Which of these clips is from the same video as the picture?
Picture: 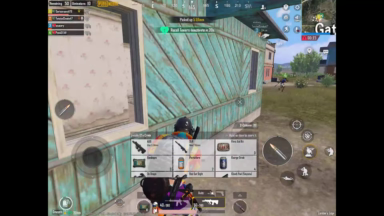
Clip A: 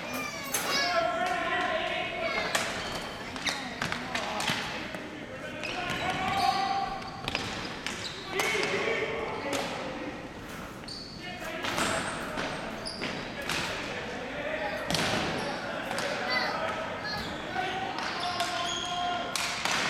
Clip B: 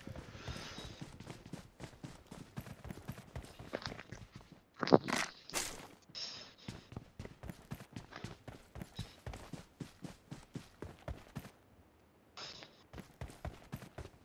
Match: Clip B